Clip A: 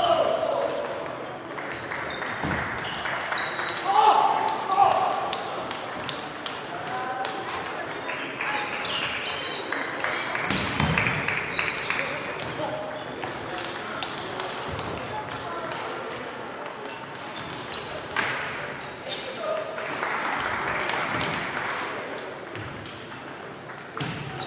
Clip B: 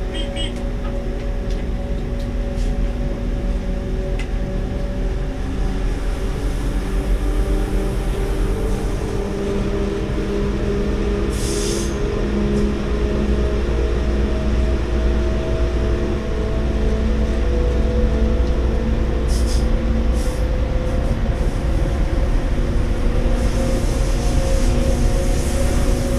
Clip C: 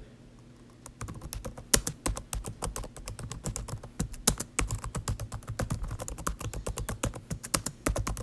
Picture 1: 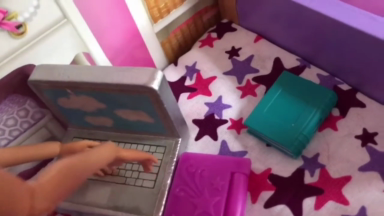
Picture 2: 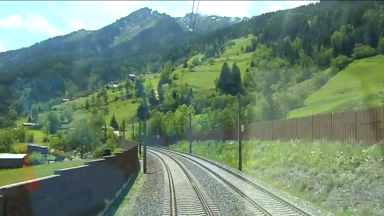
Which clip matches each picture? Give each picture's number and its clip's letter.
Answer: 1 C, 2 B